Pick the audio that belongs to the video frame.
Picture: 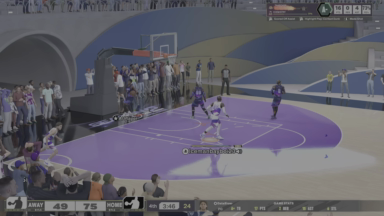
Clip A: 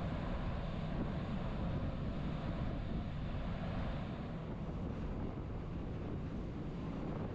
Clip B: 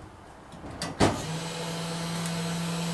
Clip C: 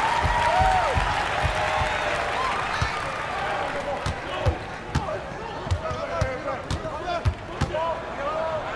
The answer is C